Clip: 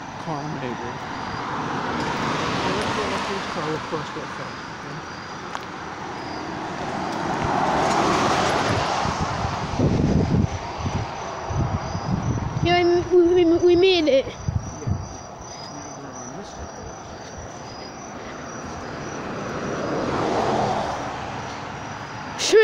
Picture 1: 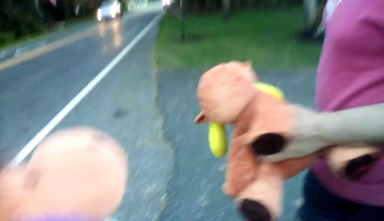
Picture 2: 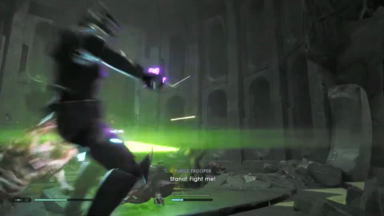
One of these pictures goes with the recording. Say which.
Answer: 1